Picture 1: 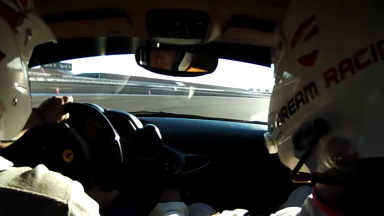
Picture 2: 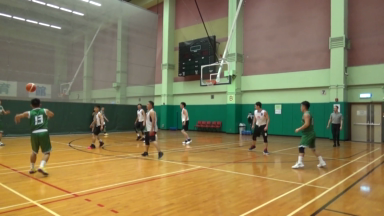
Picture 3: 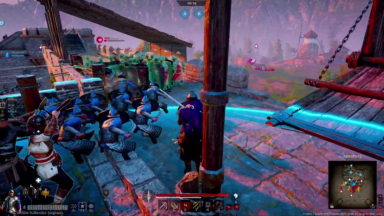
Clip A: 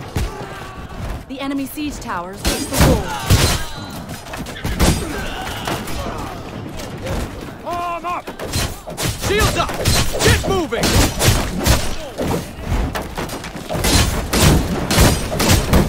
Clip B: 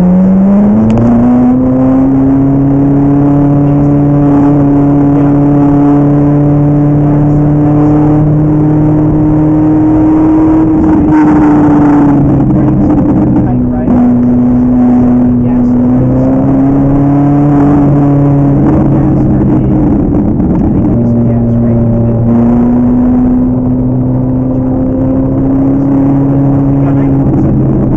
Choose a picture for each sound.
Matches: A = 3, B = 1